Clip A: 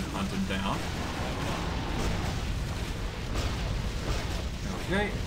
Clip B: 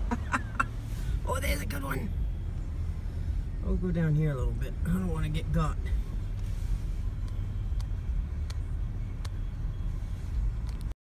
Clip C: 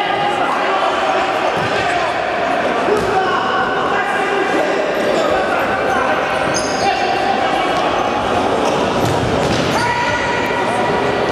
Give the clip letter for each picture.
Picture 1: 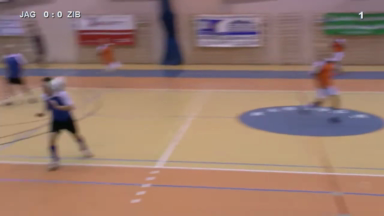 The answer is C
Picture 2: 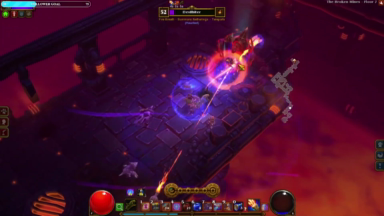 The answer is A